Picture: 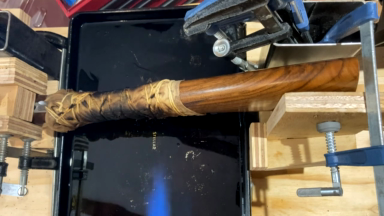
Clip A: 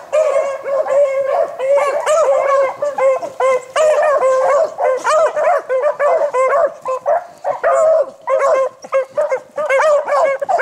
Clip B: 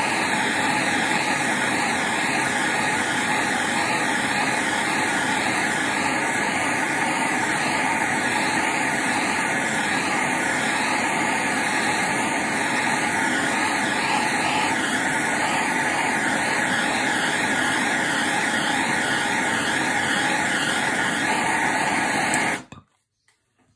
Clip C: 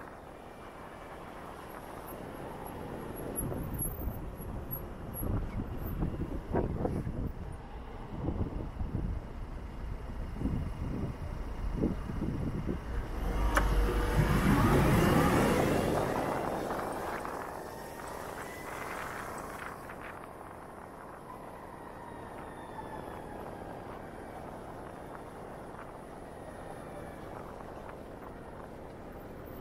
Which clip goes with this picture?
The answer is B